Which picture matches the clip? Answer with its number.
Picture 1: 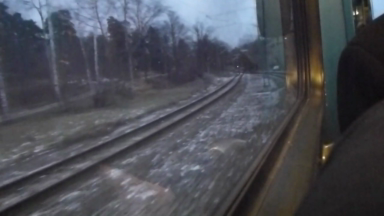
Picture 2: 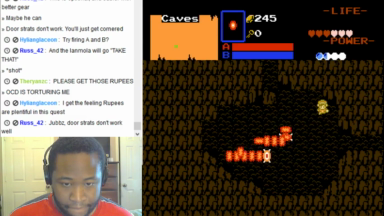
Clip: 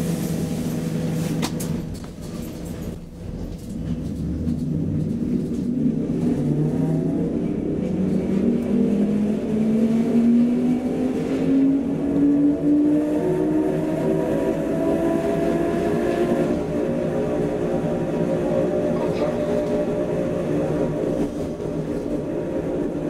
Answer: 1